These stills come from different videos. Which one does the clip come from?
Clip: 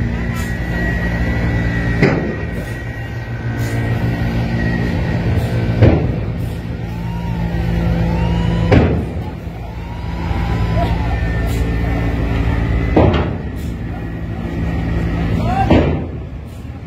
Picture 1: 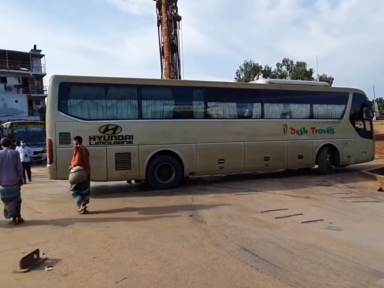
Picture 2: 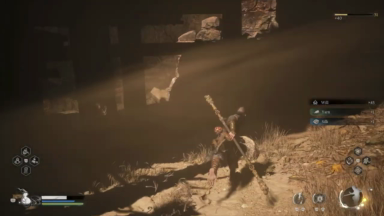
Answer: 1